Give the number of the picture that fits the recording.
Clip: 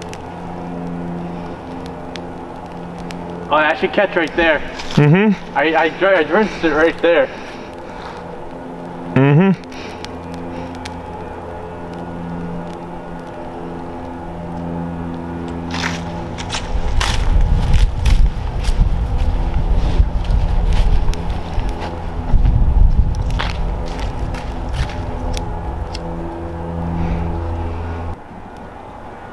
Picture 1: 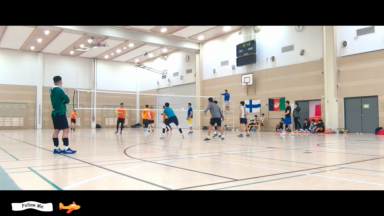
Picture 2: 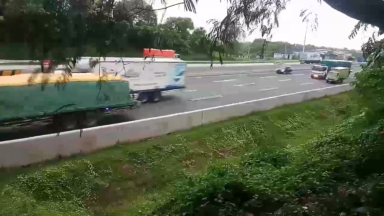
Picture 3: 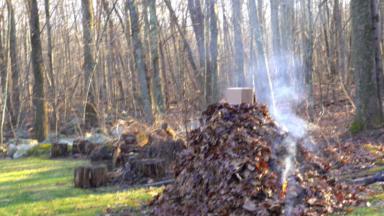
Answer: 3